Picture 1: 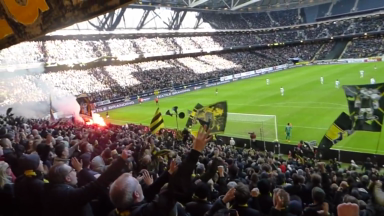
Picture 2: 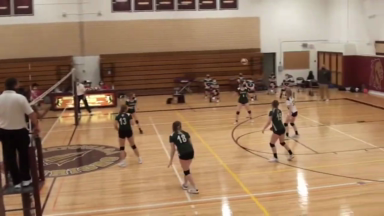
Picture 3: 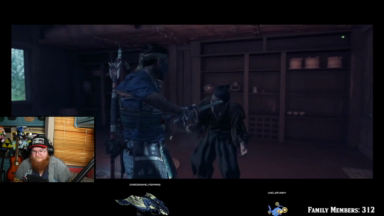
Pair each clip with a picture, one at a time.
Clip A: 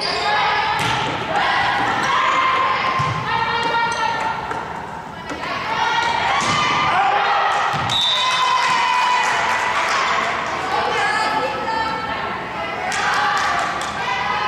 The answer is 2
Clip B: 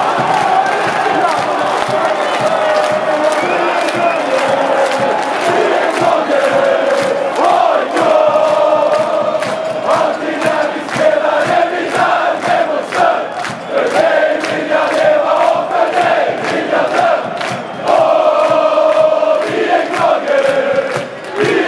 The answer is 1